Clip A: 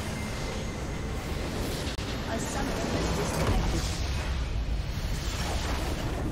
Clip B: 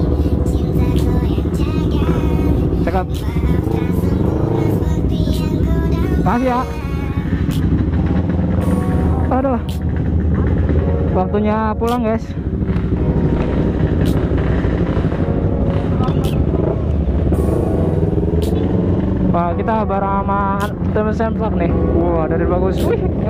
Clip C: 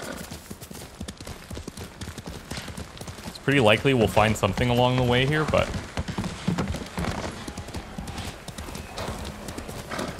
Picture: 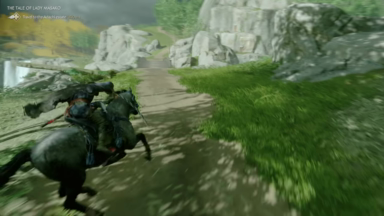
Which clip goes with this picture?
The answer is C